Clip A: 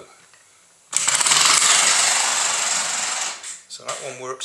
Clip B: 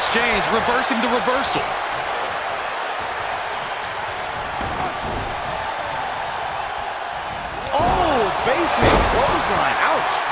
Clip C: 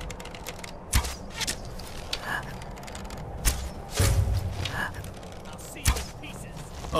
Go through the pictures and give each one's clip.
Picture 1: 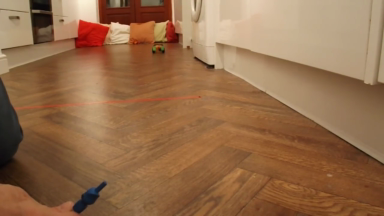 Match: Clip A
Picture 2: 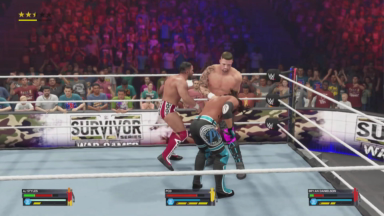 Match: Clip B